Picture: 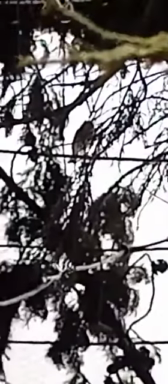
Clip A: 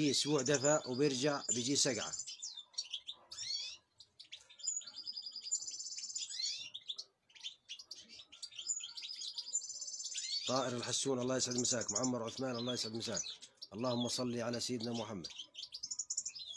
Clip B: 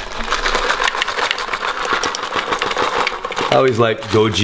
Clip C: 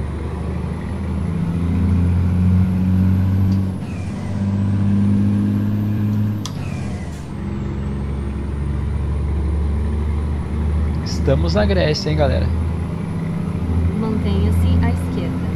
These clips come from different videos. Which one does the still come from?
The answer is A